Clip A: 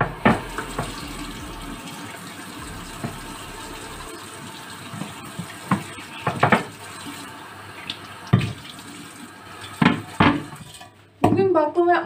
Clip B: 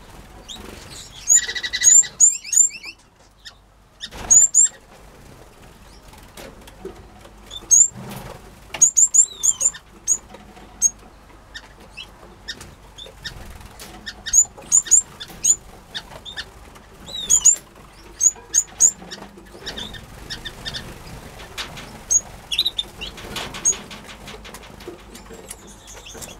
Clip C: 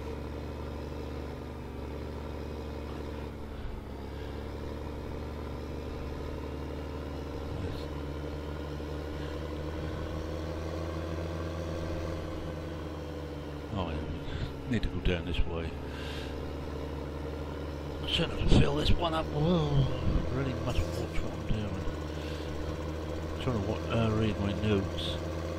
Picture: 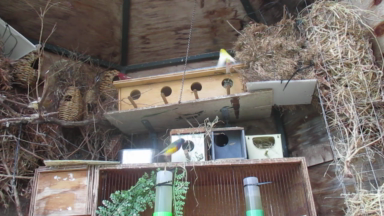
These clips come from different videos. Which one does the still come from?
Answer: B